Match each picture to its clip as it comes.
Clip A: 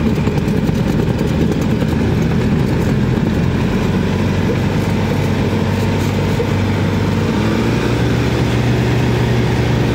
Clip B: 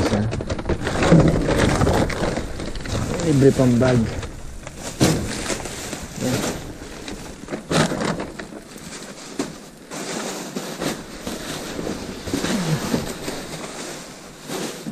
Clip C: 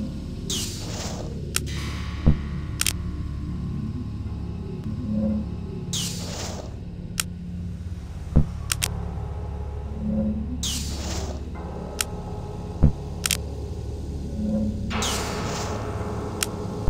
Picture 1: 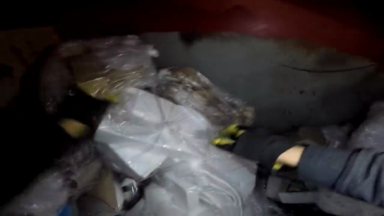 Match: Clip B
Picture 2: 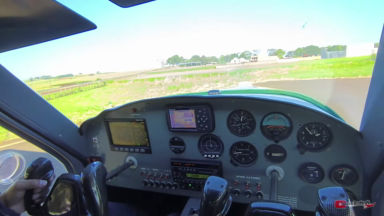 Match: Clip A